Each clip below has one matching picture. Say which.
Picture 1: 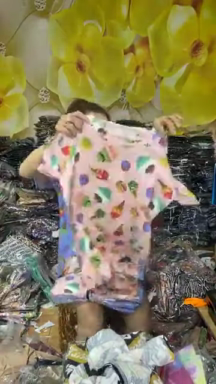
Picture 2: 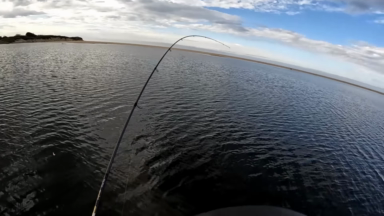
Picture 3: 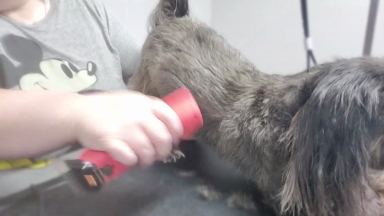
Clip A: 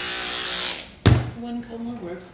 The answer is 3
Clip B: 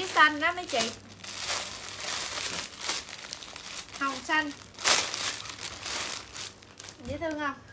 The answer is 1